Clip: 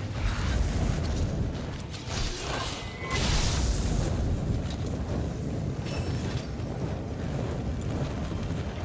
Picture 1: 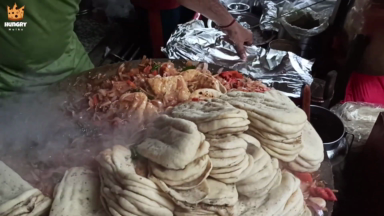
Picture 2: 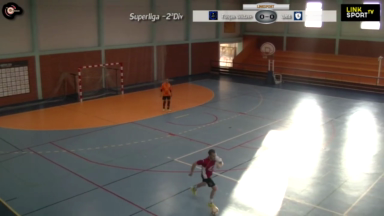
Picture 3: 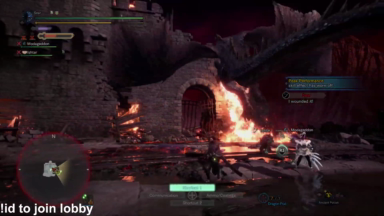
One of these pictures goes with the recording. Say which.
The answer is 3